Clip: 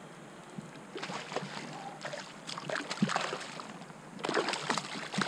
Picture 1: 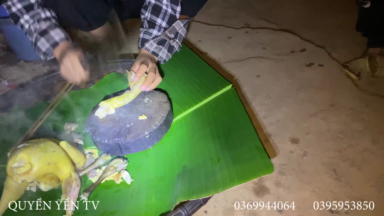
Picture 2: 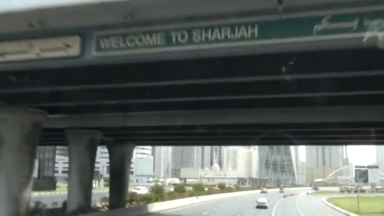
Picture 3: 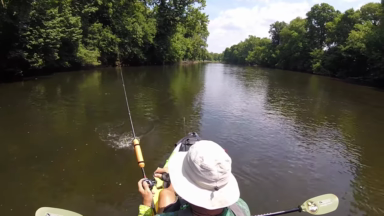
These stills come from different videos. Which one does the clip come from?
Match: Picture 3